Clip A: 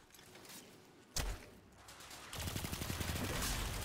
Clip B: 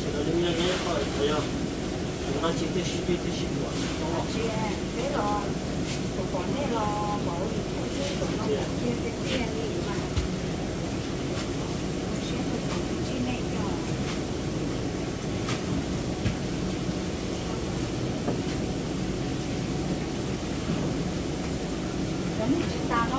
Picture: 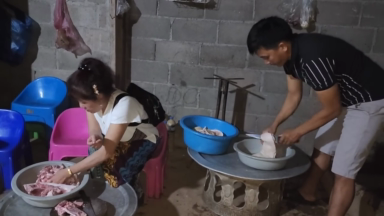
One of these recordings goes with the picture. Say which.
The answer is B